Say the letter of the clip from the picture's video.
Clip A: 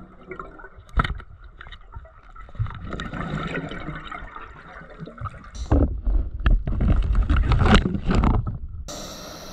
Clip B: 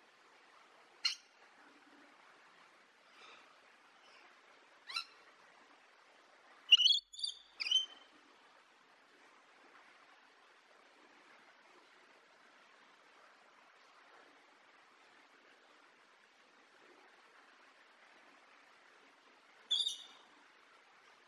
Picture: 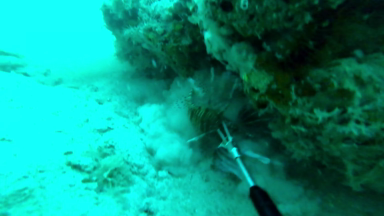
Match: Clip A